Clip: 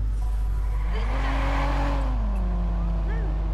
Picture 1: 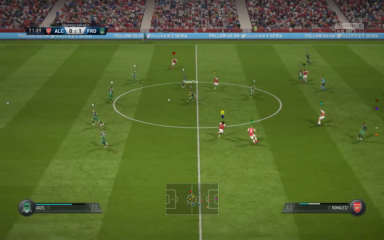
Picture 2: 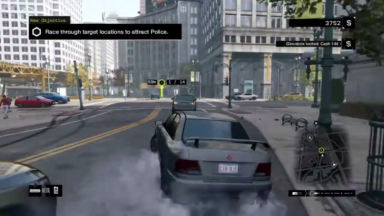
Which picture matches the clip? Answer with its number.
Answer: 2